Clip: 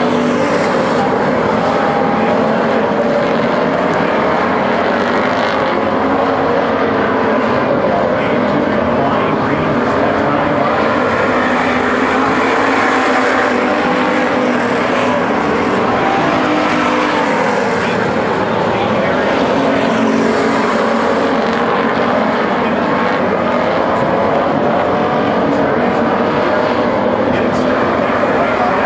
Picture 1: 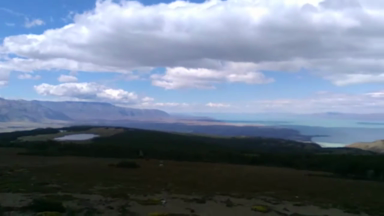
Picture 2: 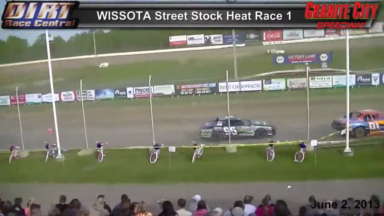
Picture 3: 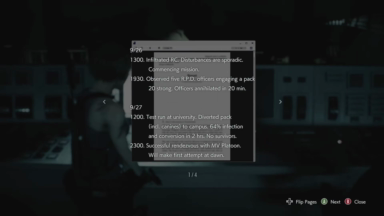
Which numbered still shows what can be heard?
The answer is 2